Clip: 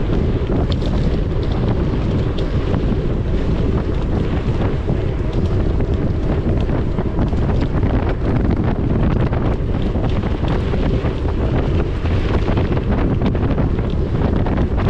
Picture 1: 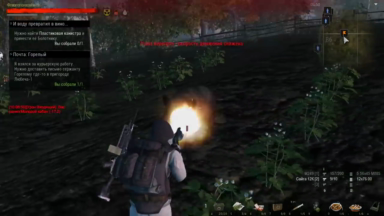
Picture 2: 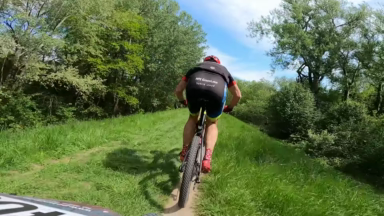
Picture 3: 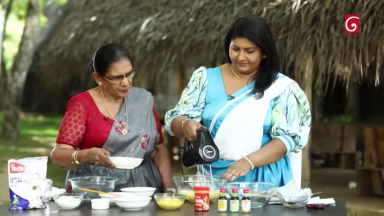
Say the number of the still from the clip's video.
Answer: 2